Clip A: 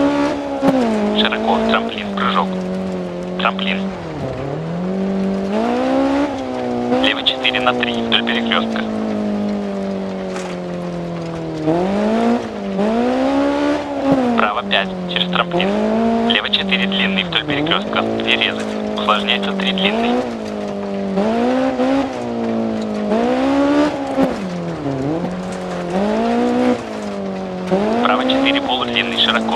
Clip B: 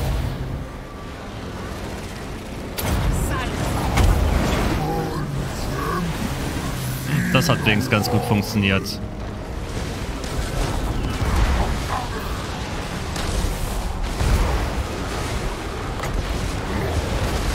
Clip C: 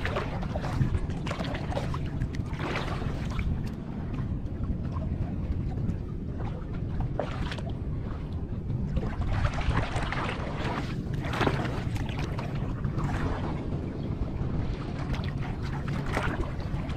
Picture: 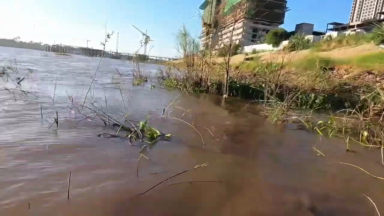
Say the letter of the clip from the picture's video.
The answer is C